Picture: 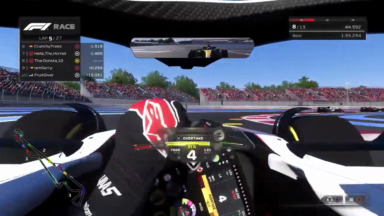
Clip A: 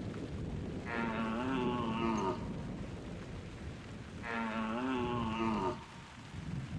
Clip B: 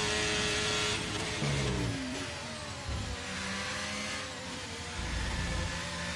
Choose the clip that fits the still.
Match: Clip B